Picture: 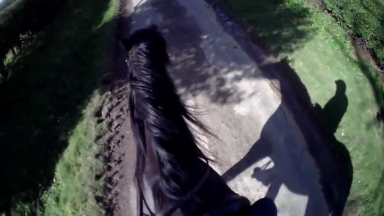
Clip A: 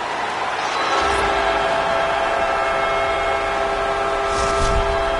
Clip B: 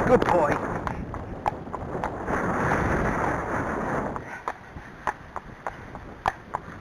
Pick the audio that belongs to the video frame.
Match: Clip B